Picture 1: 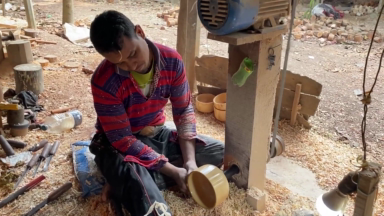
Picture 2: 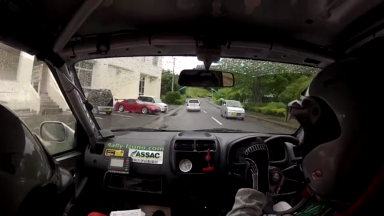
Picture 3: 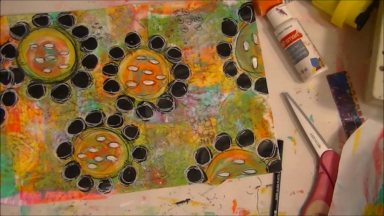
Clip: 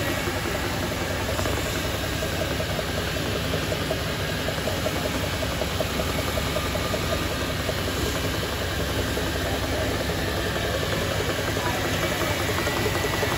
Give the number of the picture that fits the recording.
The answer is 1